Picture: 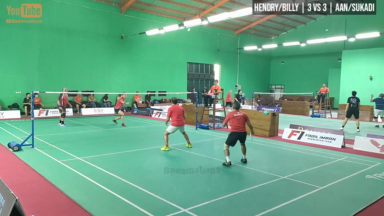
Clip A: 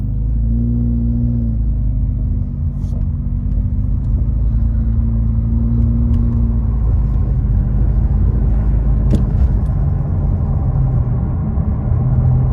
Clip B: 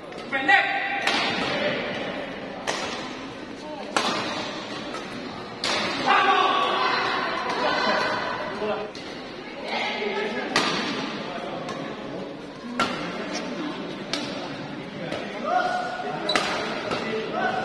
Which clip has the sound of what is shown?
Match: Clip B